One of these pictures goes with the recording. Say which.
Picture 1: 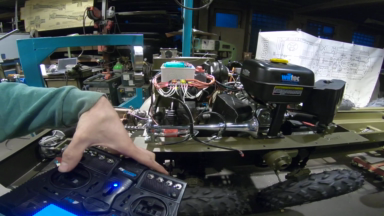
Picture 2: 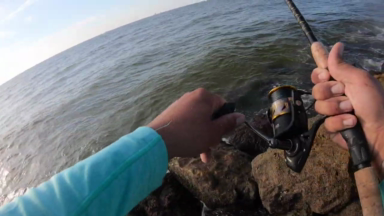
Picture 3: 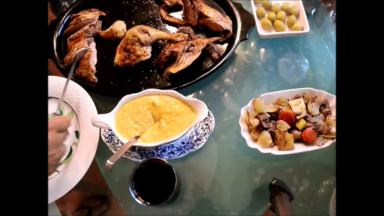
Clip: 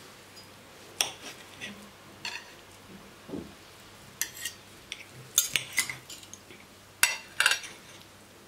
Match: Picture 3